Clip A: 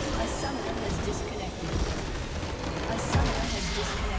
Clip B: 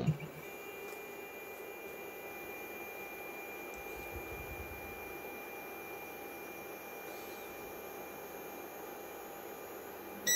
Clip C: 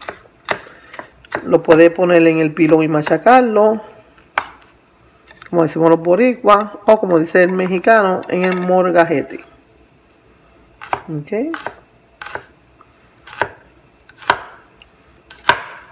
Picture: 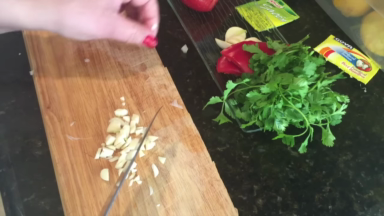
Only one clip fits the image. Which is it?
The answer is C